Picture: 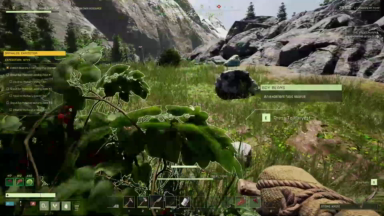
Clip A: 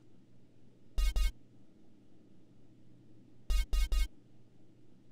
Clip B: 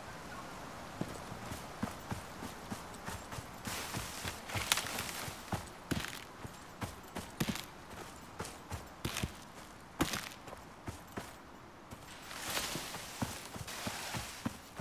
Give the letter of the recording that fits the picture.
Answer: B